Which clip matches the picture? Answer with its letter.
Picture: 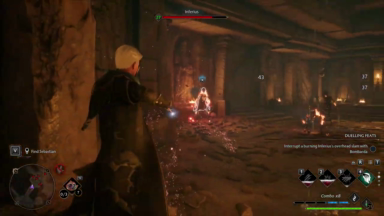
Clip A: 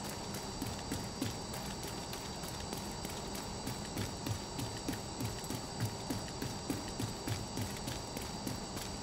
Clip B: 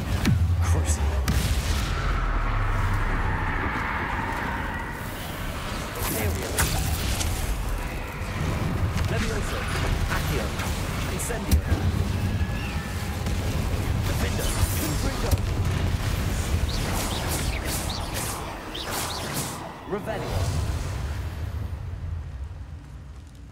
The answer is B